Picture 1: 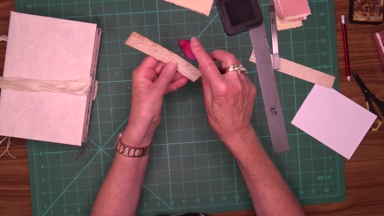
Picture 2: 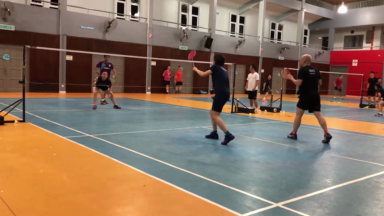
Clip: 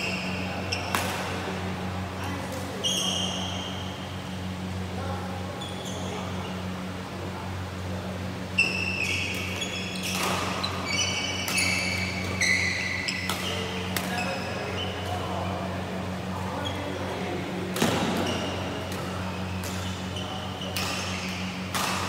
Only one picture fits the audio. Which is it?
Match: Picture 2